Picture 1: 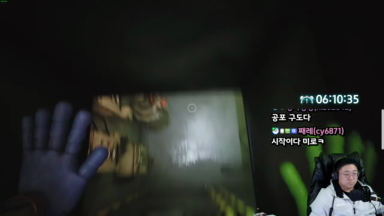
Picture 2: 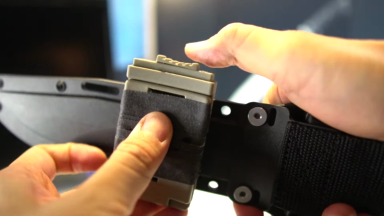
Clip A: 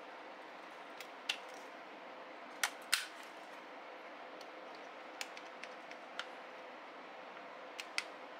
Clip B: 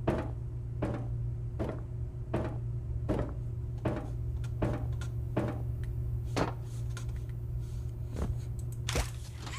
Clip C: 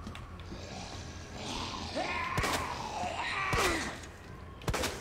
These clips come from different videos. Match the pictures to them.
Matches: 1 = B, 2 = A